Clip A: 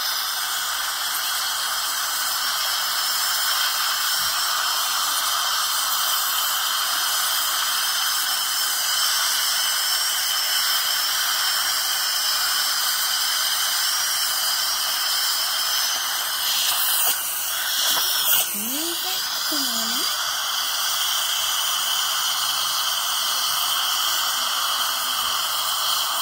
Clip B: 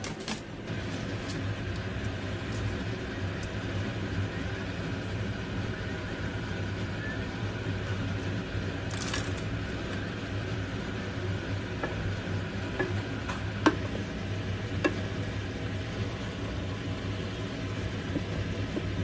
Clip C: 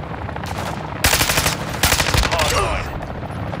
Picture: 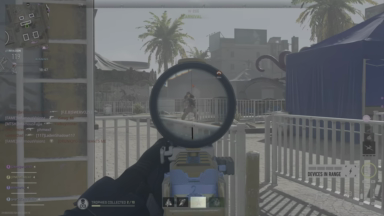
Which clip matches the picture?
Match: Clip C